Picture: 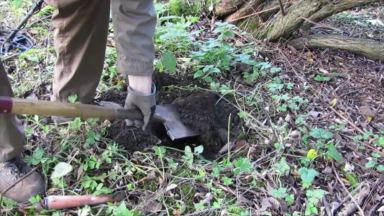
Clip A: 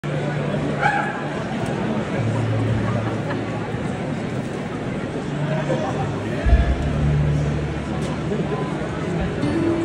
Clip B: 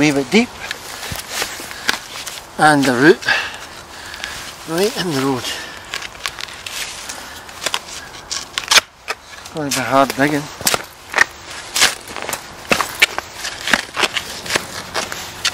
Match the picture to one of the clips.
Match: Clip B